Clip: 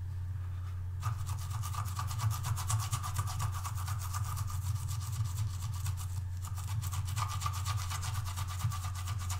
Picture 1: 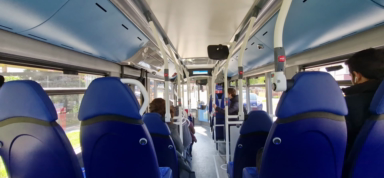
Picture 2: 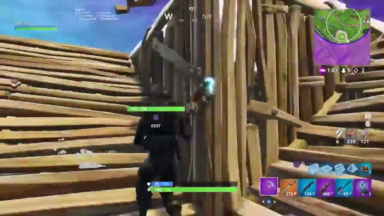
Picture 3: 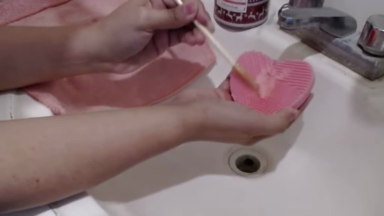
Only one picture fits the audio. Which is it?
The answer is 3